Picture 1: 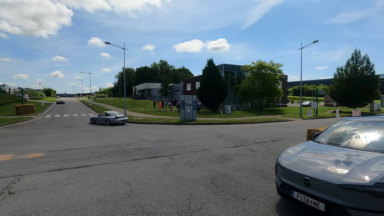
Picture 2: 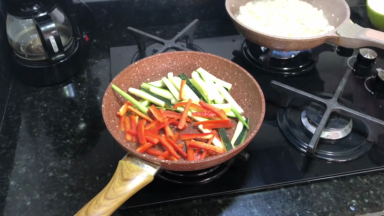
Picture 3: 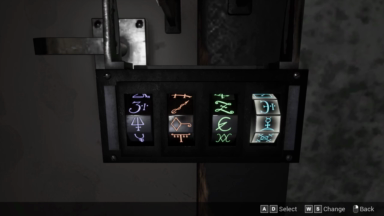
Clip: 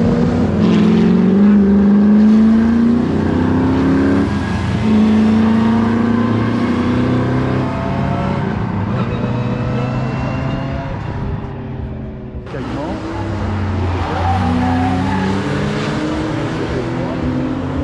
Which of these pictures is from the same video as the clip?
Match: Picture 1